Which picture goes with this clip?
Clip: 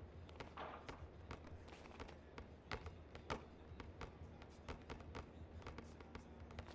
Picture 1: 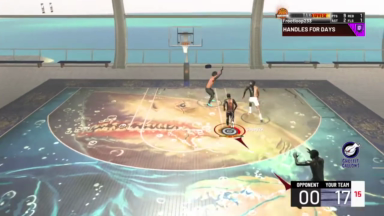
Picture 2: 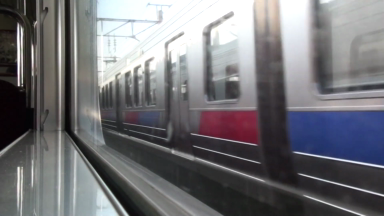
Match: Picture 1